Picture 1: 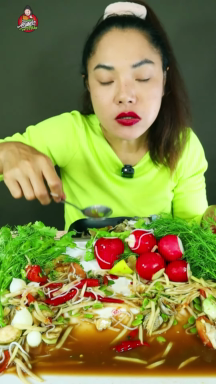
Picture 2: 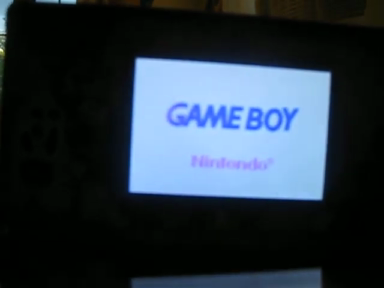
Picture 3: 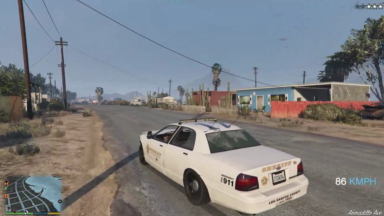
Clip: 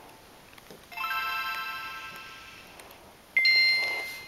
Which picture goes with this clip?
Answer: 2